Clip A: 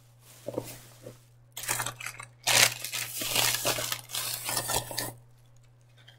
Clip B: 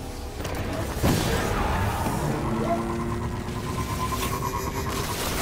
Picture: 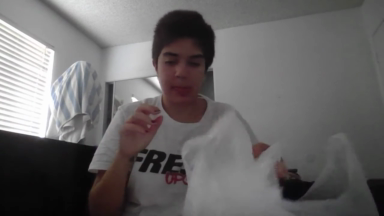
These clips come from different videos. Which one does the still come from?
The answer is A